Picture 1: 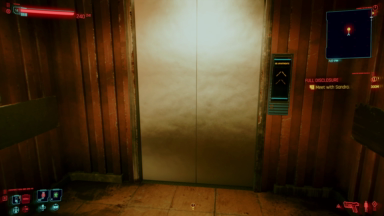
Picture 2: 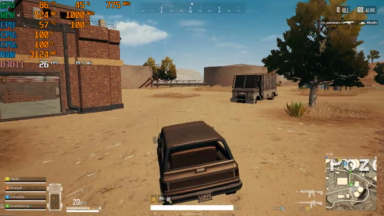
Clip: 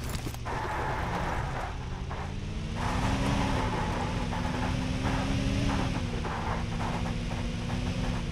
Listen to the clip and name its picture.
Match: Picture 2